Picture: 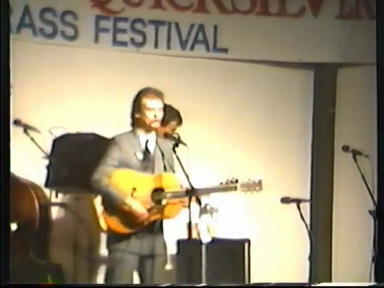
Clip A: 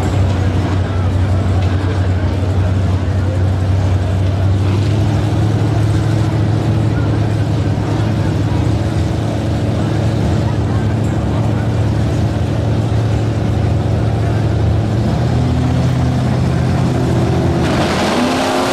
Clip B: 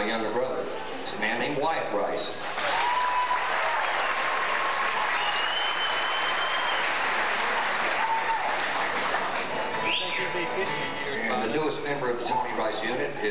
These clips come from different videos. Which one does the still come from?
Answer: B